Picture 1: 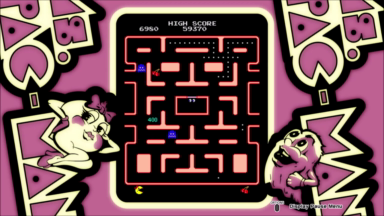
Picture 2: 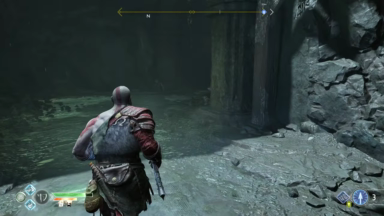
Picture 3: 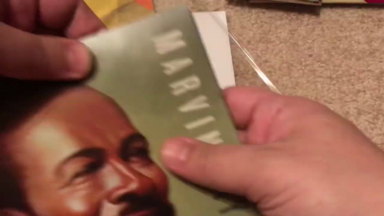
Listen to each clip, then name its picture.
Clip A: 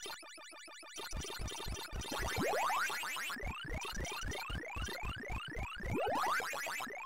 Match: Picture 1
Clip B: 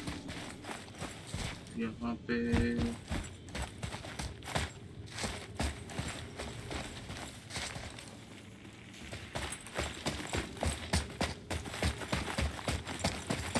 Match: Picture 2